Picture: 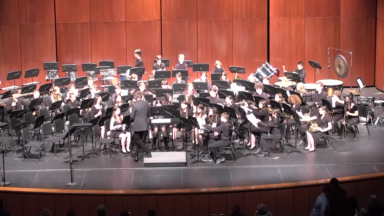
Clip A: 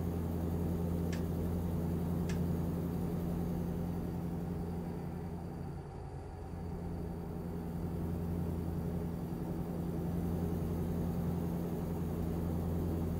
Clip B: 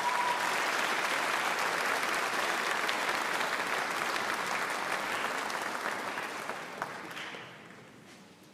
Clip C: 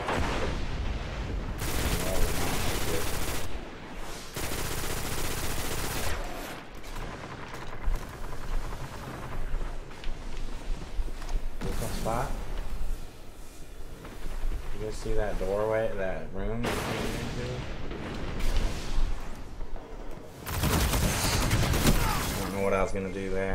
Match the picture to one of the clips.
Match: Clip B